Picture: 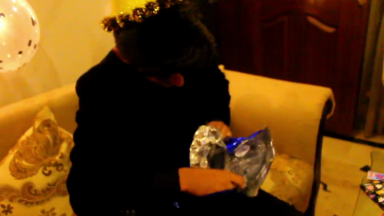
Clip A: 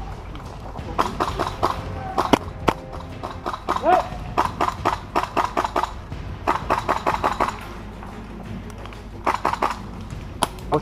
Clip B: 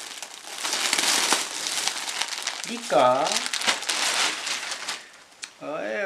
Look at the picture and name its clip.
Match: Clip B